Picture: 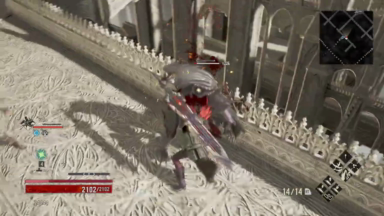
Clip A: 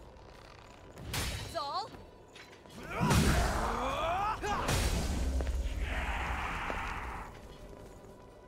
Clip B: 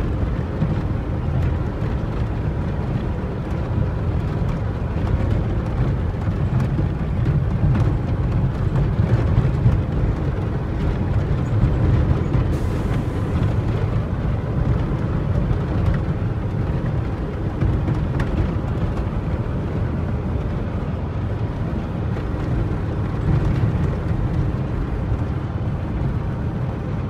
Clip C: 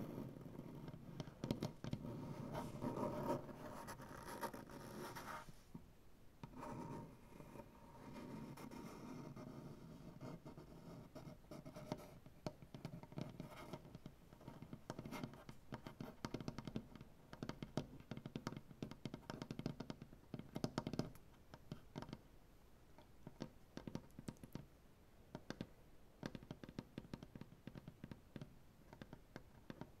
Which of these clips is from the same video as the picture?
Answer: A